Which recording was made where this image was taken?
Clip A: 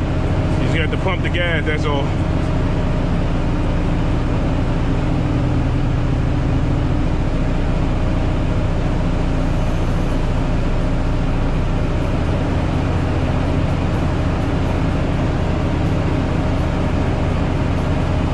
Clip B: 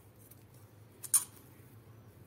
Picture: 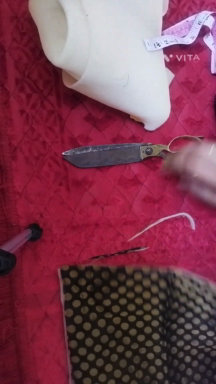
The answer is B